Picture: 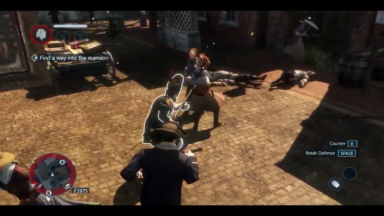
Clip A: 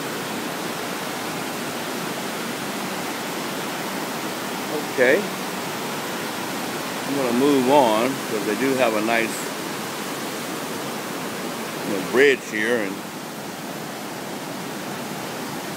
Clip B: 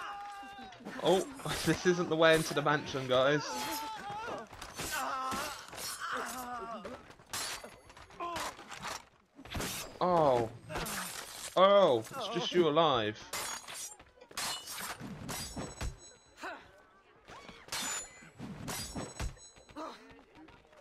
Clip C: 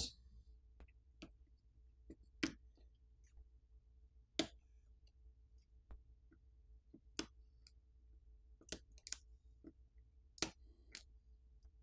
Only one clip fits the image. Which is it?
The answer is B